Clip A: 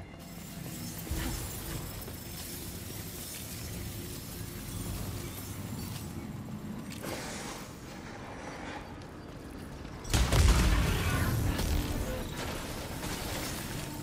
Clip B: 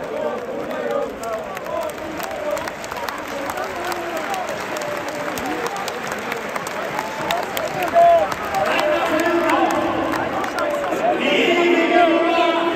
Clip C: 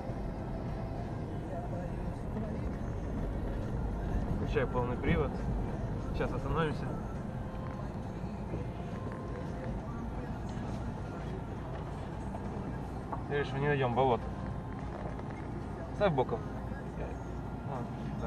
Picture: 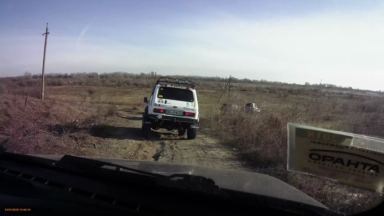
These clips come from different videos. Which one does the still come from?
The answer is C